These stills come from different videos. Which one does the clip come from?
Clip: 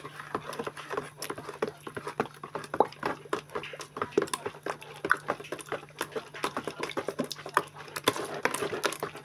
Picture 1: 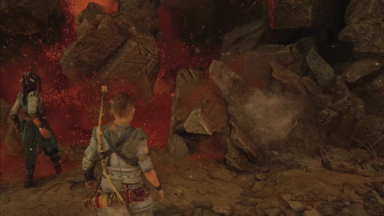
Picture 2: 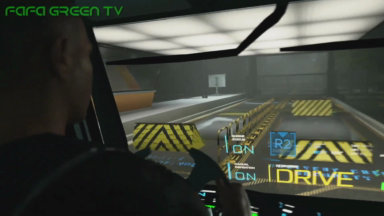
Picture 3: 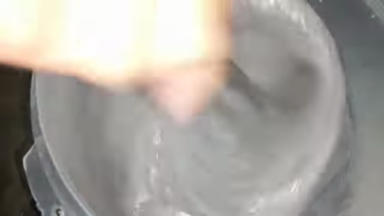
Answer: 3